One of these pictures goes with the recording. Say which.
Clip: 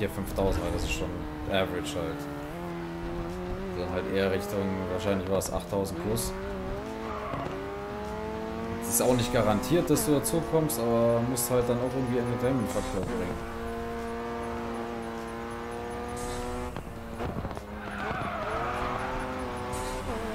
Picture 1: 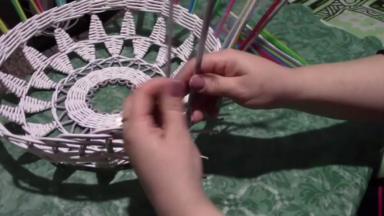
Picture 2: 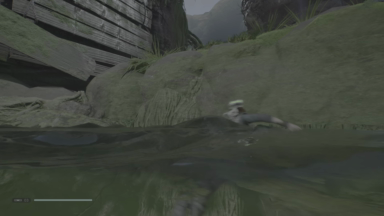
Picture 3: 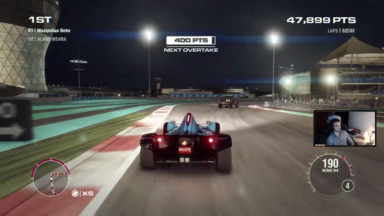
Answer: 3